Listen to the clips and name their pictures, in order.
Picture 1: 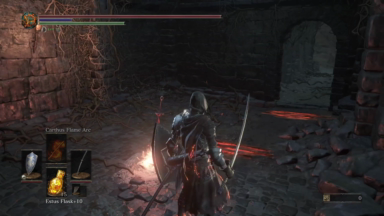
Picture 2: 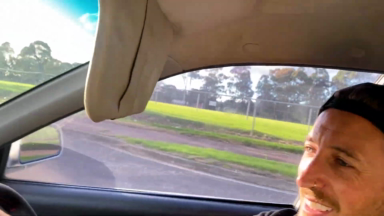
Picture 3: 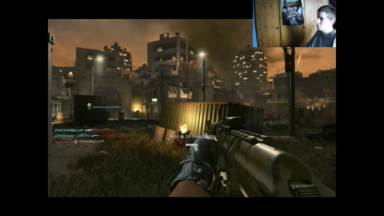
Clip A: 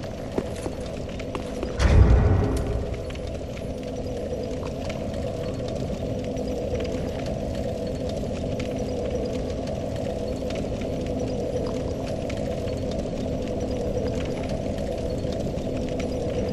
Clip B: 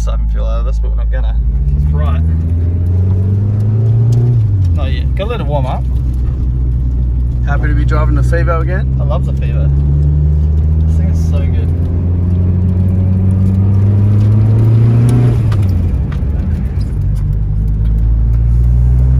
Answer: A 1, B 2